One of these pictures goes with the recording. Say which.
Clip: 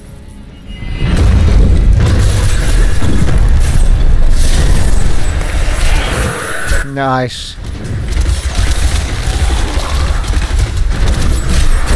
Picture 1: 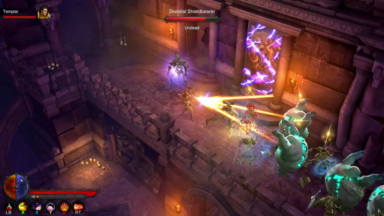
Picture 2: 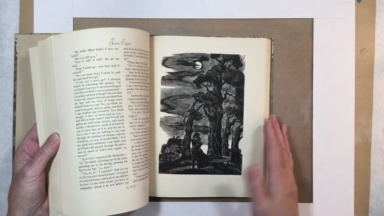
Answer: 1